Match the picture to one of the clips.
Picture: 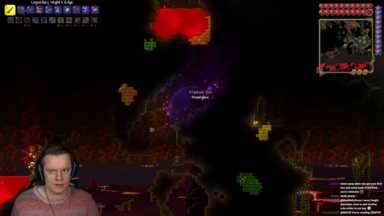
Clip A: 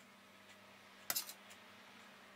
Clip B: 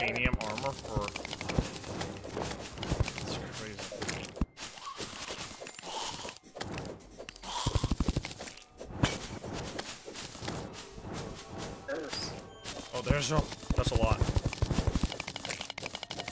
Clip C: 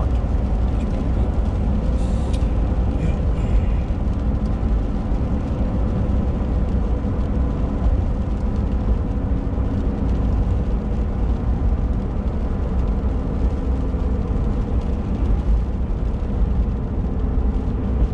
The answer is B